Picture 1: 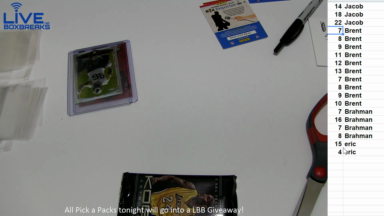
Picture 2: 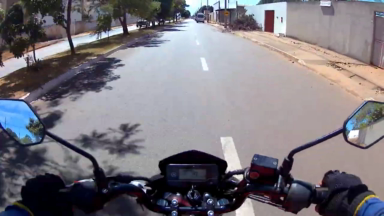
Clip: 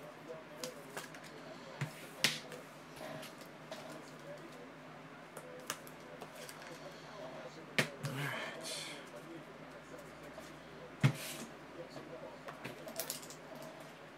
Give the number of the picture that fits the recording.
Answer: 1